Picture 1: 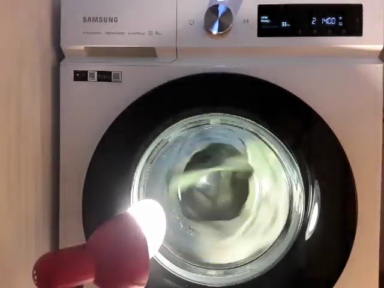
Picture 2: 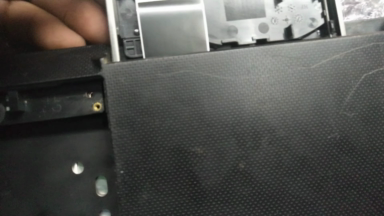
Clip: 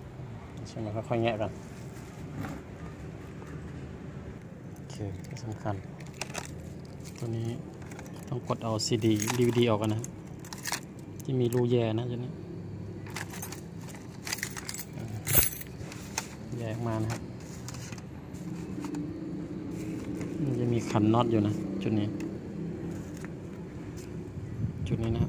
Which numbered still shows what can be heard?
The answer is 2